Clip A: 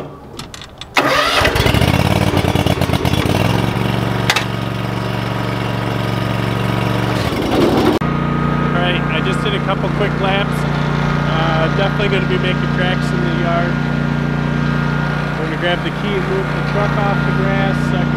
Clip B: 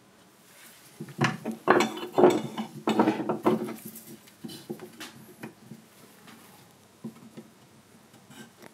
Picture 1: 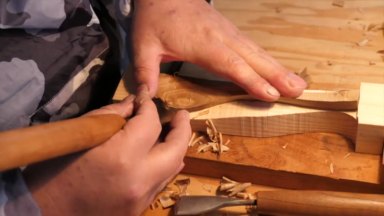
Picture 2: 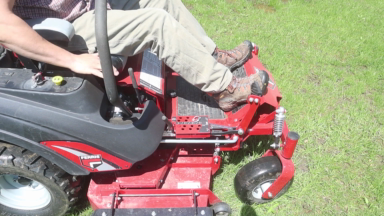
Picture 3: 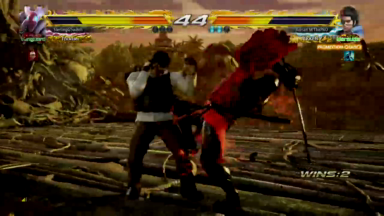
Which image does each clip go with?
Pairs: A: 2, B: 1